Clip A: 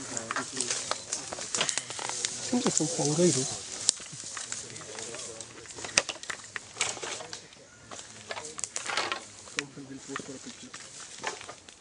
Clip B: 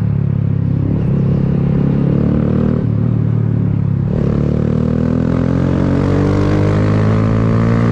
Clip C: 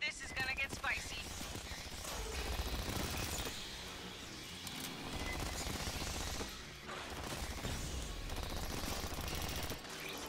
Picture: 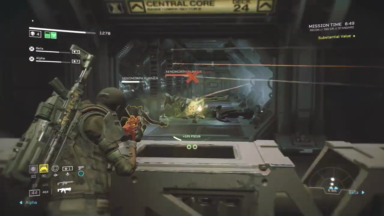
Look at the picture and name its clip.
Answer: C